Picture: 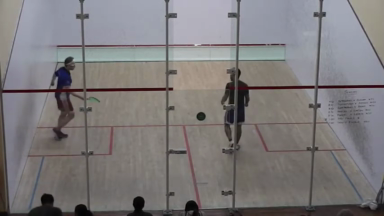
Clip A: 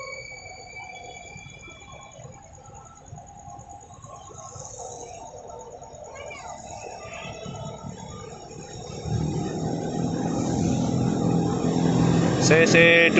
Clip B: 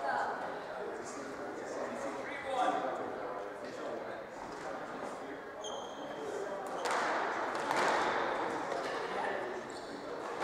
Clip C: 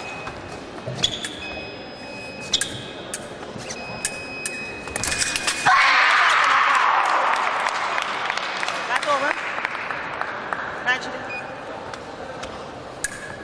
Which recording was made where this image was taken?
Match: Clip B